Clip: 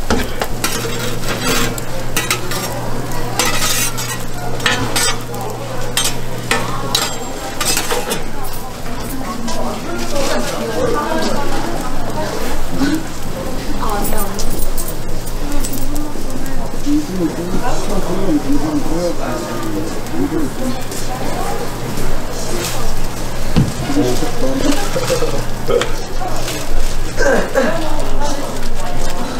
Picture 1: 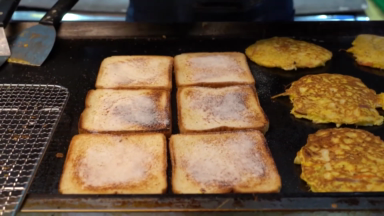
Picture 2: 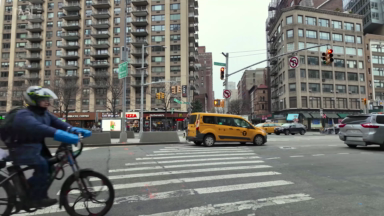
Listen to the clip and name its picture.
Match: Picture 1